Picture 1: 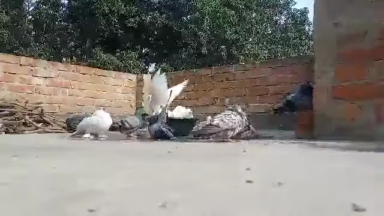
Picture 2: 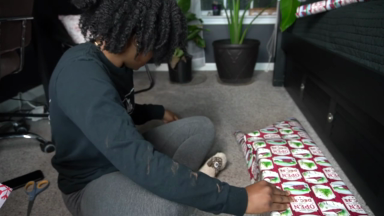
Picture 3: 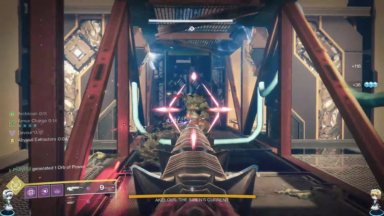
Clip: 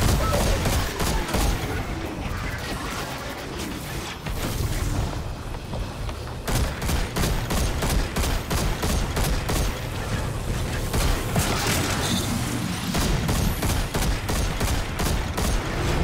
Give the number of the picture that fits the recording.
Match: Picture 3